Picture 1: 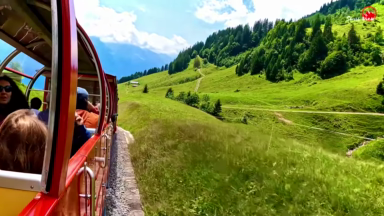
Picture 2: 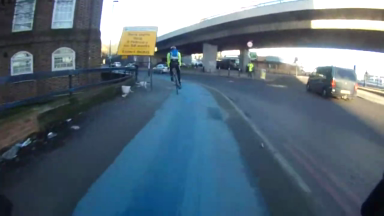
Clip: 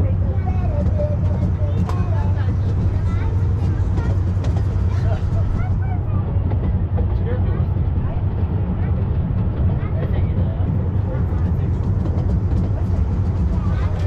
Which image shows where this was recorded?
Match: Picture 1